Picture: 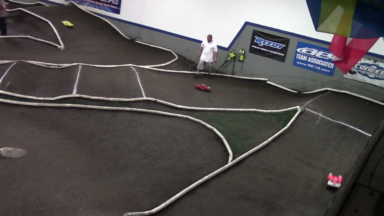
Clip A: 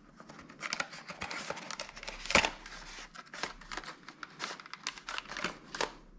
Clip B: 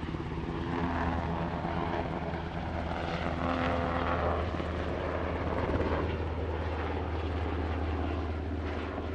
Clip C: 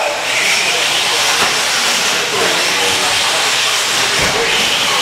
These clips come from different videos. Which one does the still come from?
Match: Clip C